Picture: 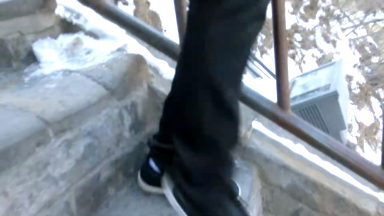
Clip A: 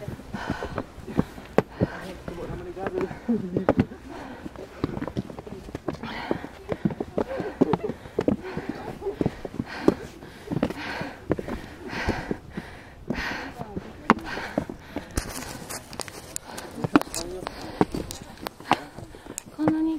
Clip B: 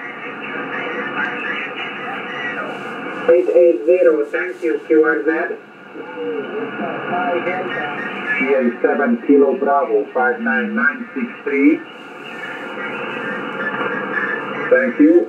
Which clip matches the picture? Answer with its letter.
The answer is A